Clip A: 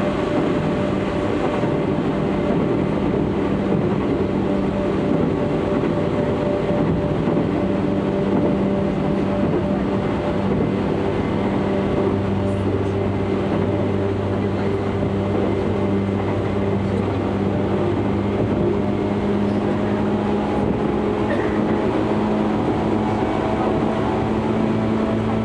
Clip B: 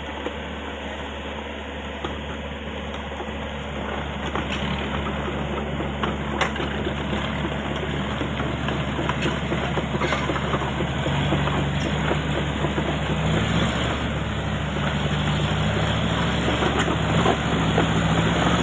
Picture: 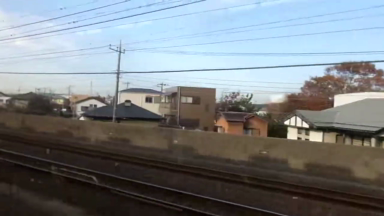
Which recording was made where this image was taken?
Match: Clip A